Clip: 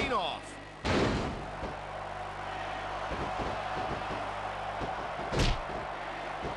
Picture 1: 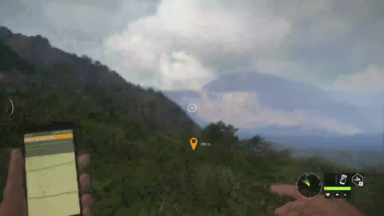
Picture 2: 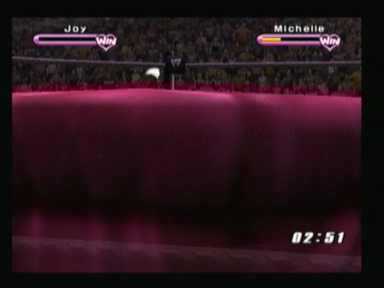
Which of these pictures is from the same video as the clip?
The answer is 2